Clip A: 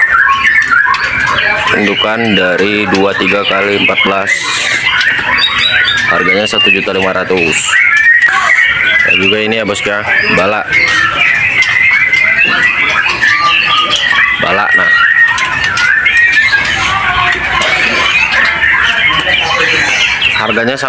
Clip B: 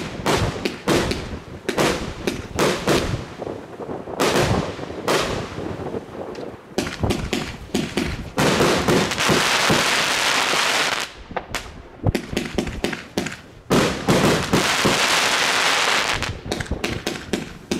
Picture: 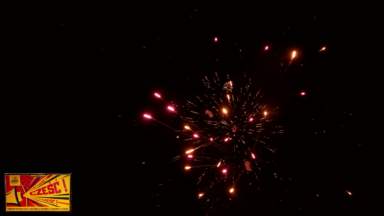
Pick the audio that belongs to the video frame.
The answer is B